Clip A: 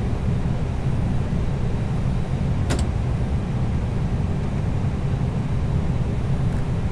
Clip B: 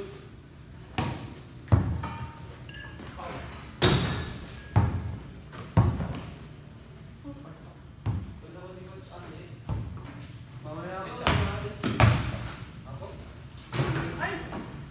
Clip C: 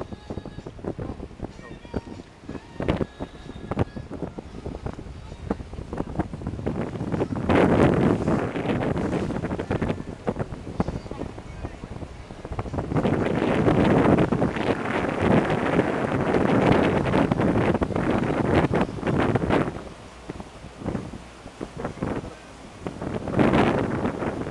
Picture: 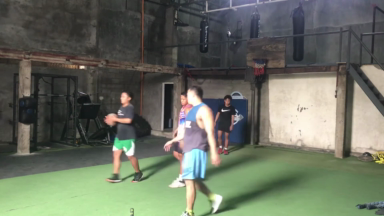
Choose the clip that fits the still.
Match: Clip B